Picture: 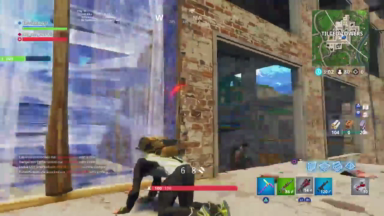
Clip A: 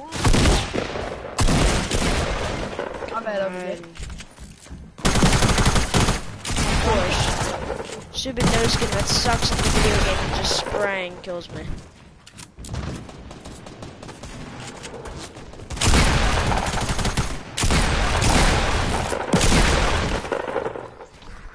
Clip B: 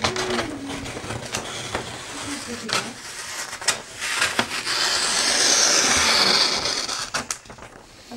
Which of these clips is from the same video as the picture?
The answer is A